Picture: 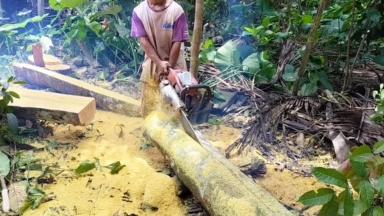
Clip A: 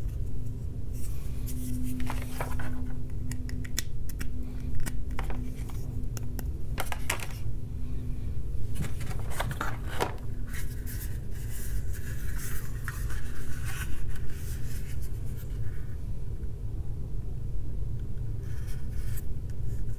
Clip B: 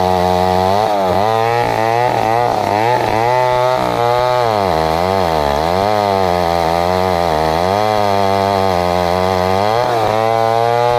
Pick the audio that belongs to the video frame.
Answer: B